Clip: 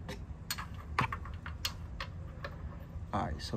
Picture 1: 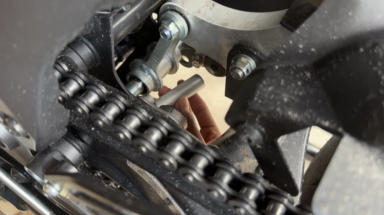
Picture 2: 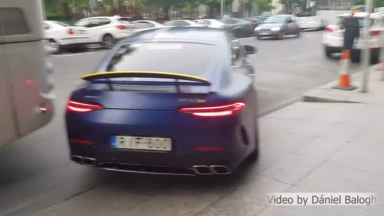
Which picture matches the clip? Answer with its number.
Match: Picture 1